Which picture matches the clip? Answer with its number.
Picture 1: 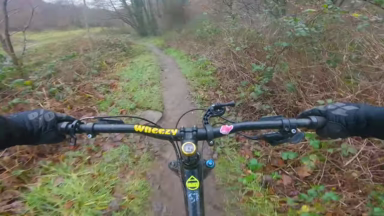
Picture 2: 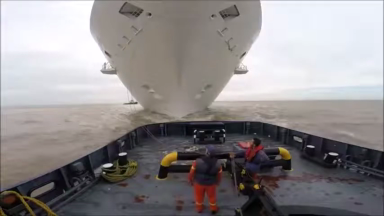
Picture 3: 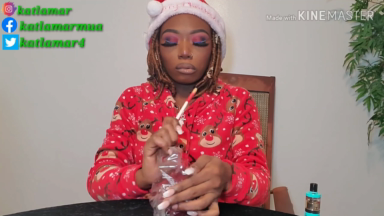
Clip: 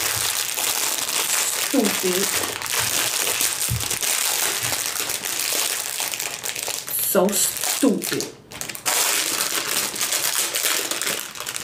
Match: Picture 3